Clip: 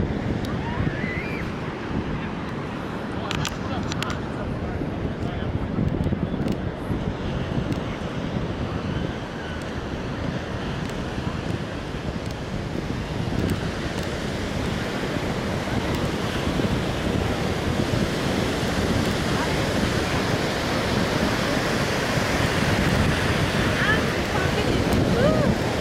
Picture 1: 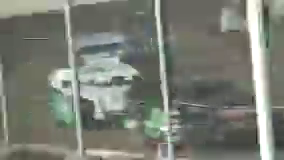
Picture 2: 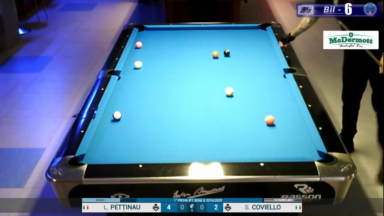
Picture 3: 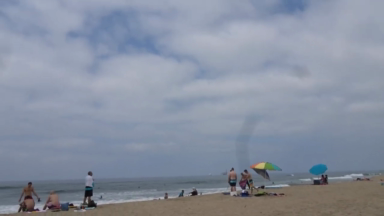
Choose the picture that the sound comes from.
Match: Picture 3